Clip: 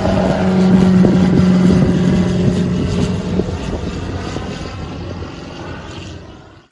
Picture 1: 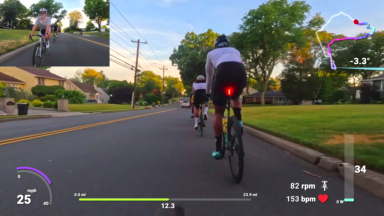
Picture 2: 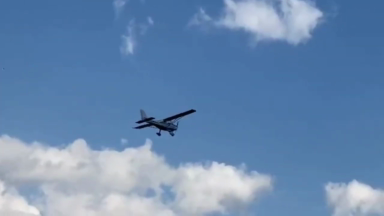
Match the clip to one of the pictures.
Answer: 2